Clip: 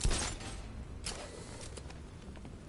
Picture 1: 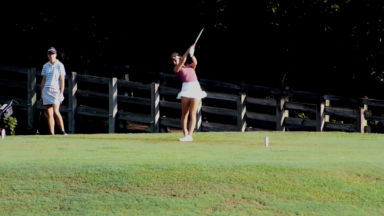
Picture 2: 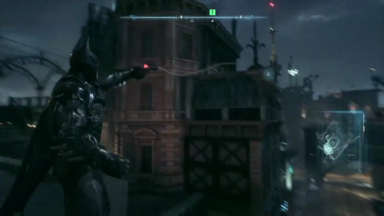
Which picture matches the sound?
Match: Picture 2